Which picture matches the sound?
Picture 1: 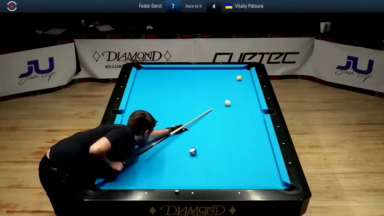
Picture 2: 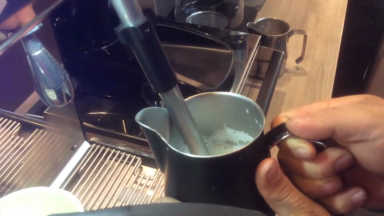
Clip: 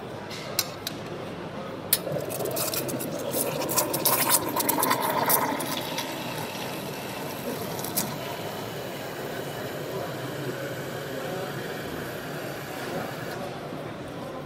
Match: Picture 2